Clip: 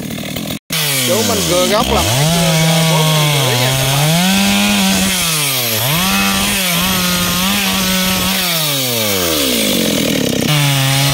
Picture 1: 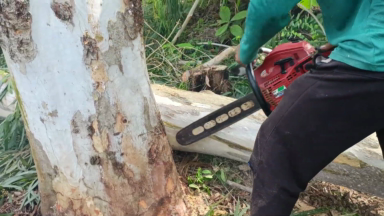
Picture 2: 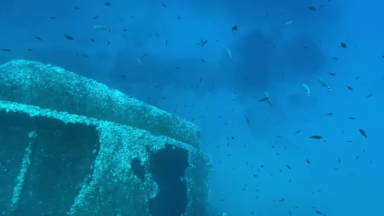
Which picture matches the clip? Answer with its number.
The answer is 1